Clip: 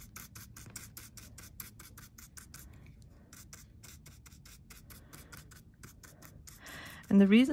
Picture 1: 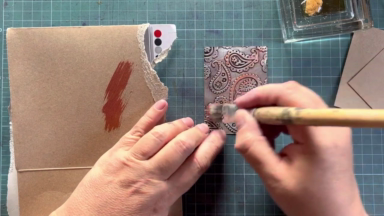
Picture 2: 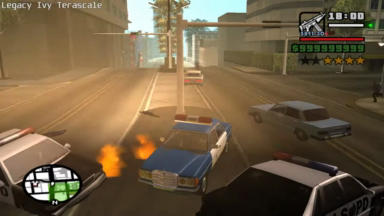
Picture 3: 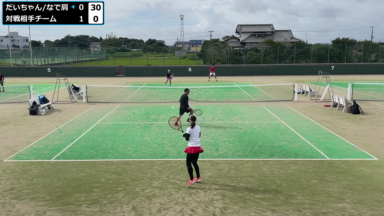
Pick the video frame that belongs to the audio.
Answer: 1